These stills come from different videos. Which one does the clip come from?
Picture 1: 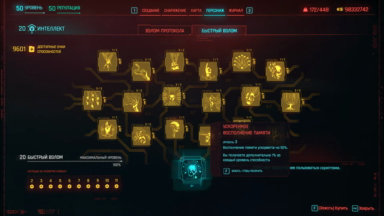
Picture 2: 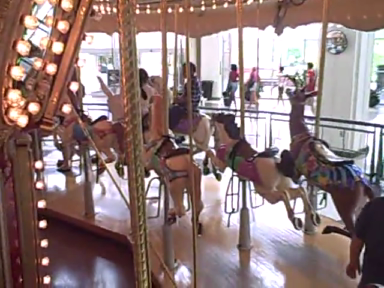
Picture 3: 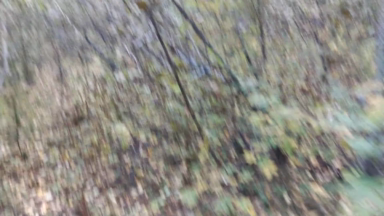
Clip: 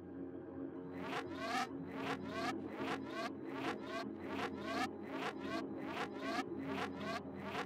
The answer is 1